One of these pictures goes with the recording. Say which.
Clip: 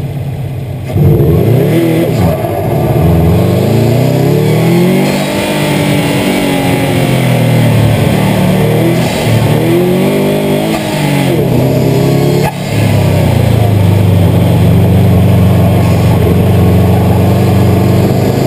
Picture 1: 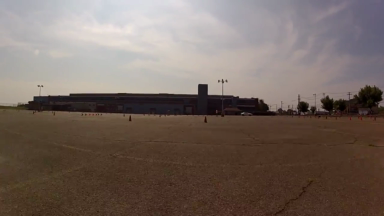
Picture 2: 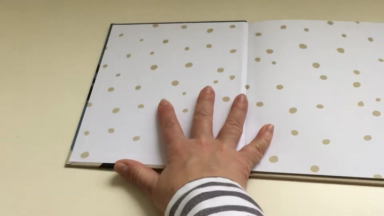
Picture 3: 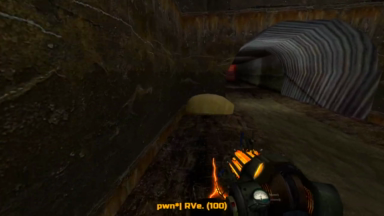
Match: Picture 1